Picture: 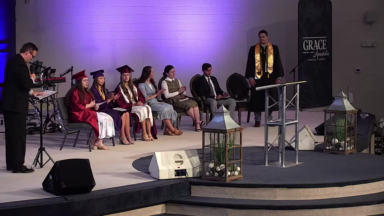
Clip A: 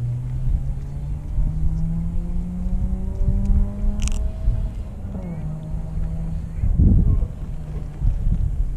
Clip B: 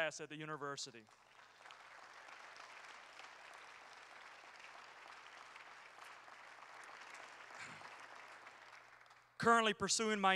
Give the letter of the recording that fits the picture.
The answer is B